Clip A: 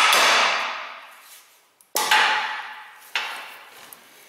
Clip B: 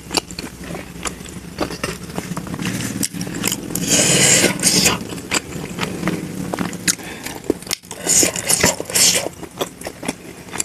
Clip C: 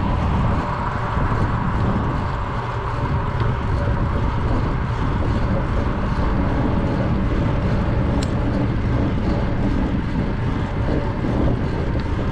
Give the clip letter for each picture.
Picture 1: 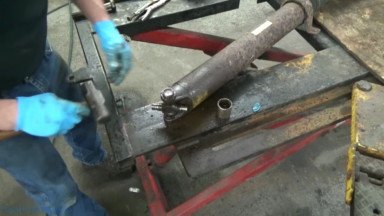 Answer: A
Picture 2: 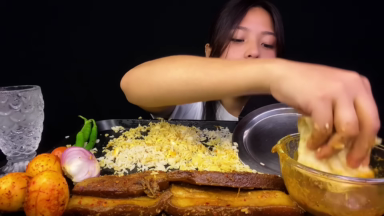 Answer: B